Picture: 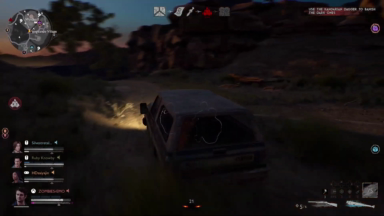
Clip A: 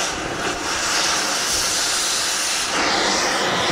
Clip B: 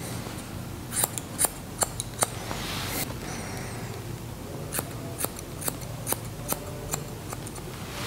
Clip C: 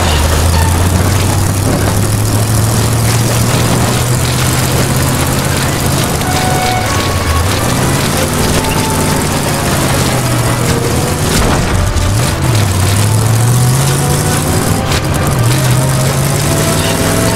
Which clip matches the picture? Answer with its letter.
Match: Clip C